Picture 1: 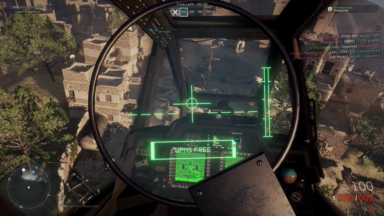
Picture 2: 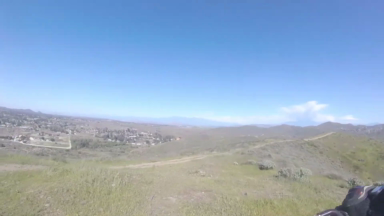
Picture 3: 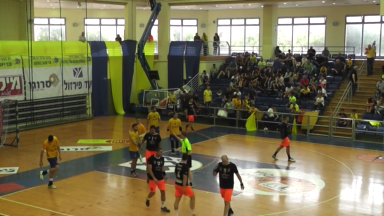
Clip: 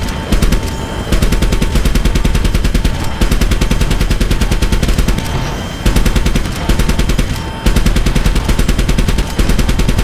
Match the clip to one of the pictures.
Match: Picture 1